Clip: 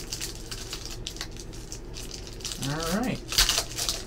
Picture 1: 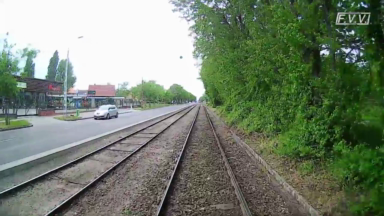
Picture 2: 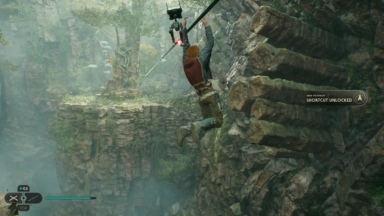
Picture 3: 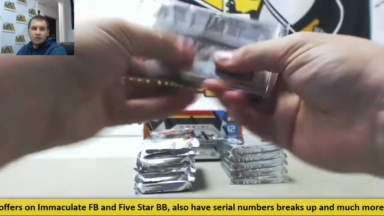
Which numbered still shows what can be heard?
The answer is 3